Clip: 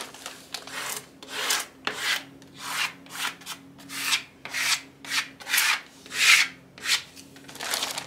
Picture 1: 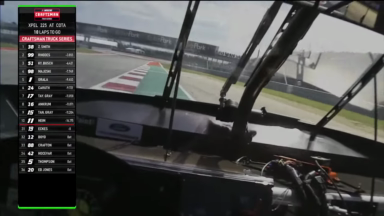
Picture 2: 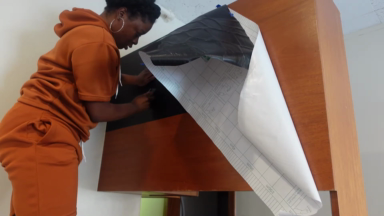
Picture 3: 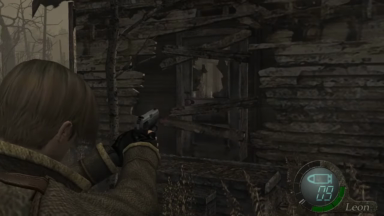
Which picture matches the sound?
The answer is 2